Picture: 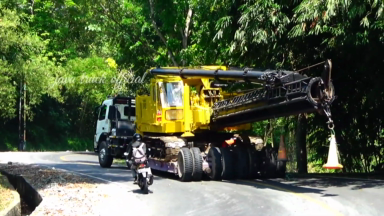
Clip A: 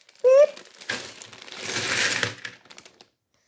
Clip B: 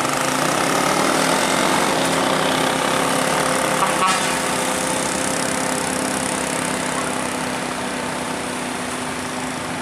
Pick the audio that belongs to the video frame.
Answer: B